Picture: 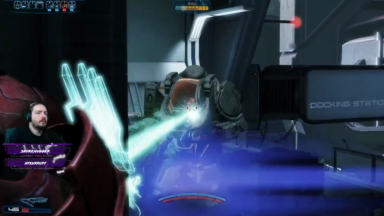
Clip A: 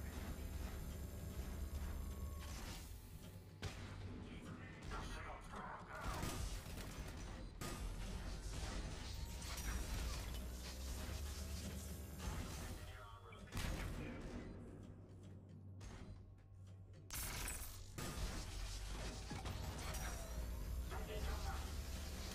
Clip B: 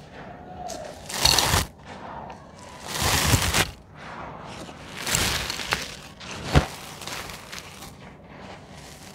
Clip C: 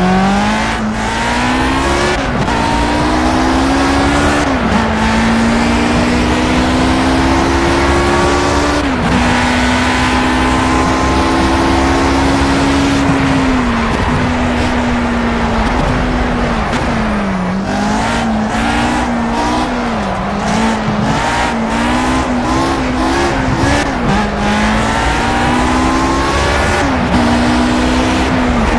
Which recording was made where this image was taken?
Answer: A